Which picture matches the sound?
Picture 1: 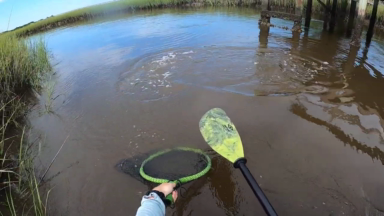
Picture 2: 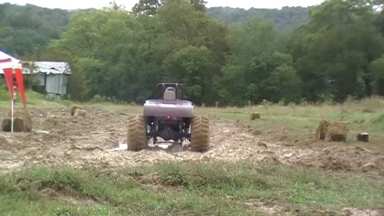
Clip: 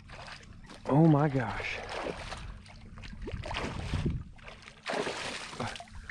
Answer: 1